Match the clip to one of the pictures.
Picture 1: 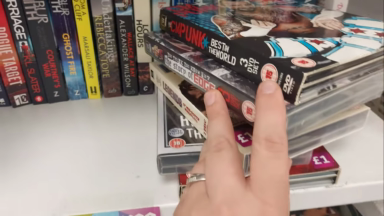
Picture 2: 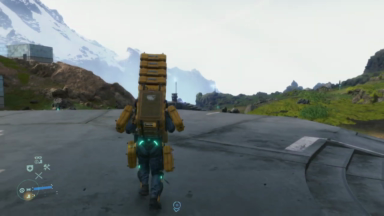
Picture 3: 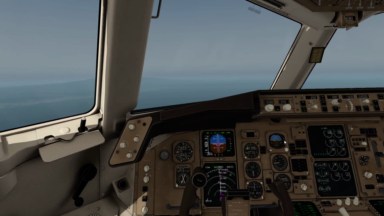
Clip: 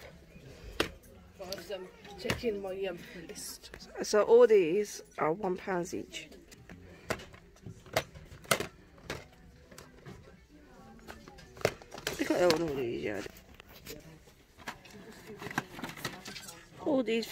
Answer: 1